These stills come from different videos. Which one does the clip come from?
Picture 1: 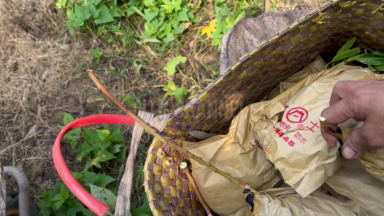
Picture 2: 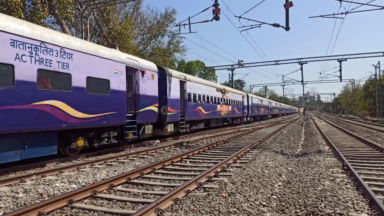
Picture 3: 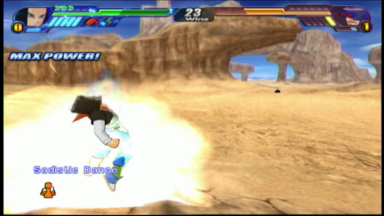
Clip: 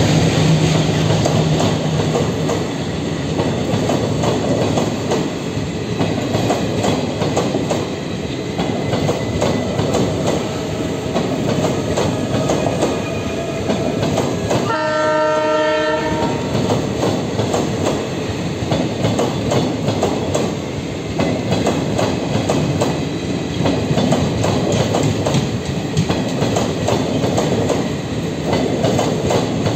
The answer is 2